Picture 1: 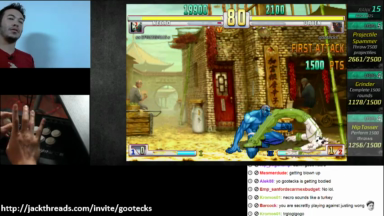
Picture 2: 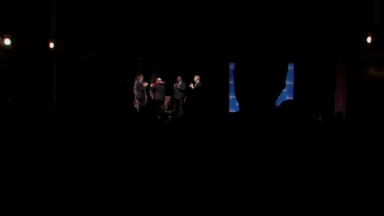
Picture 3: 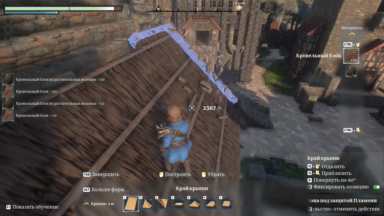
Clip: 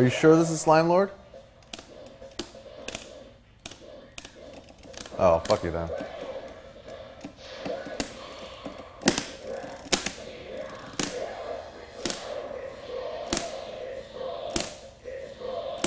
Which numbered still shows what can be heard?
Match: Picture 1